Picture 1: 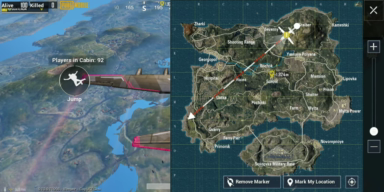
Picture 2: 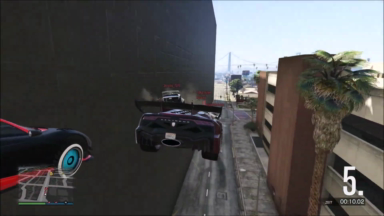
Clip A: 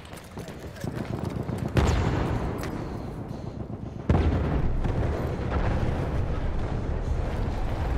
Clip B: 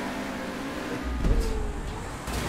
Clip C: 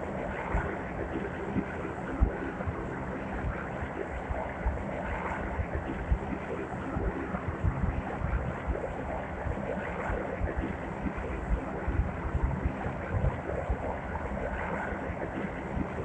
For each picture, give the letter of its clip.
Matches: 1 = C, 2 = B